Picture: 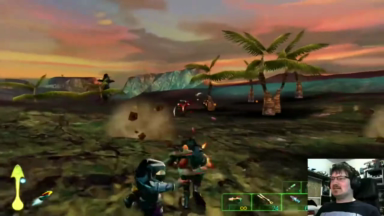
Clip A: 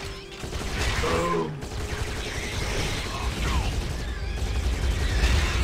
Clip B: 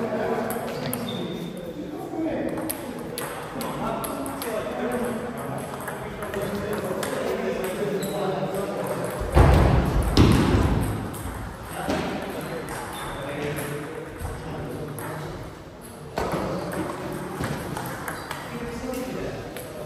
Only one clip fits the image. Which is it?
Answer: A